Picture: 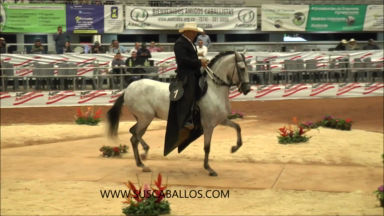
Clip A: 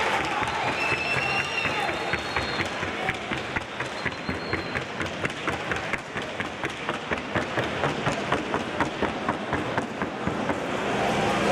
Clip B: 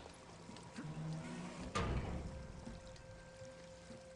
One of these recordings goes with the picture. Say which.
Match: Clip A